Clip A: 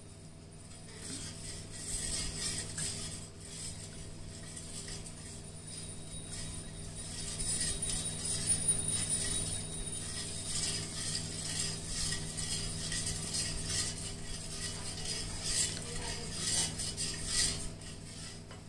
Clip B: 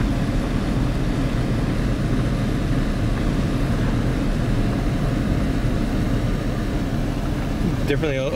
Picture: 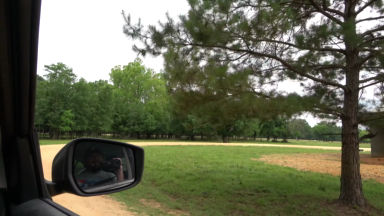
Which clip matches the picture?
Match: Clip B